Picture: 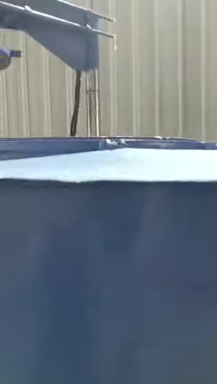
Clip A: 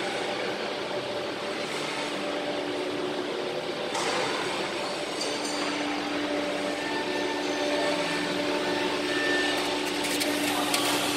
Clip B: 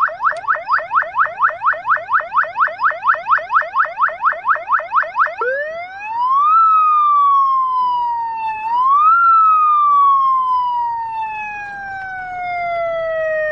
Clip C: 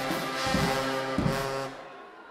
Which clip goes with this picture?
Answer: A